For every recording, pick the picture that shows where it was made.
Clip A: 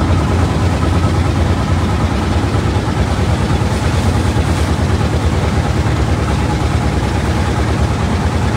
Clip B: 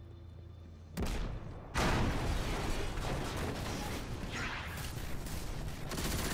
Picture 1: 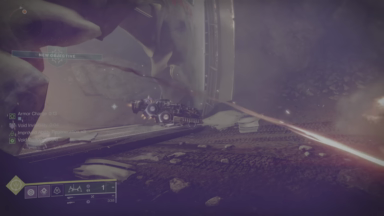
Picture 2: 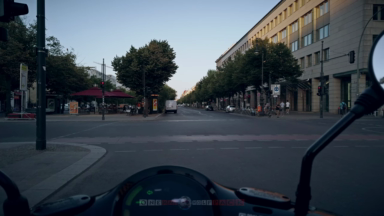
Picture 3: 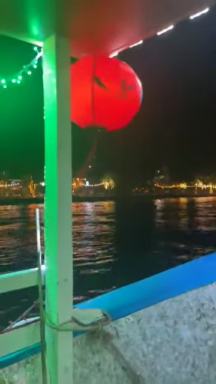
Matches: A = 3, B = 1